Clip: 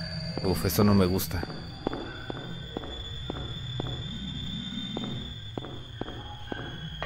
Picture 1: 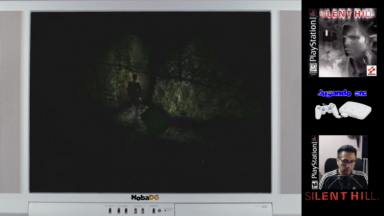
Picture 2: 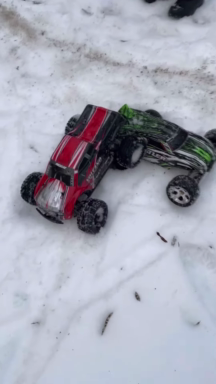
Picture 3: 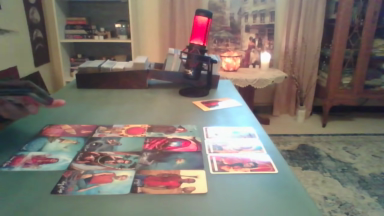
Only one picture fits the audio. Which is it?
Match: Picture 1